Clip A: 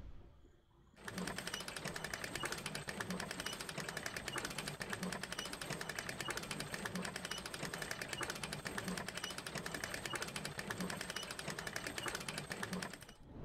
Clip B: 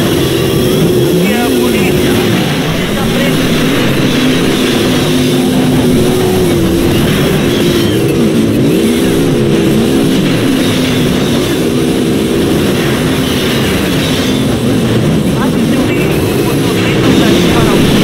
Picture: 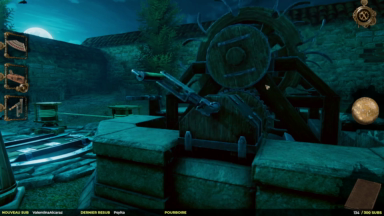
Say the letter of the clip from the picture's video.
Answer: A